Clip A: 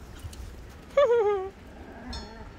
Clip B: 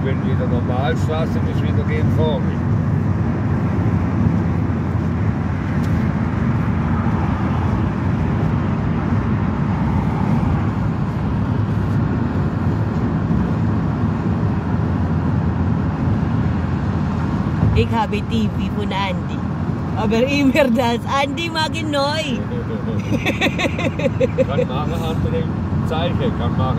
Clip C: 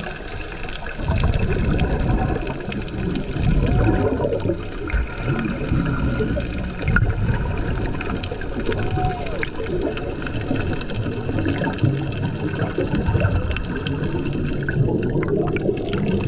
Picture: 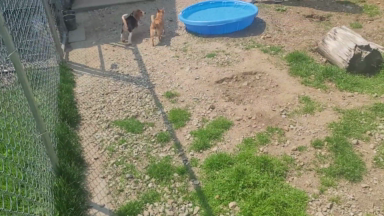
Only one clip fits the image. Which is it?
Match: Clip A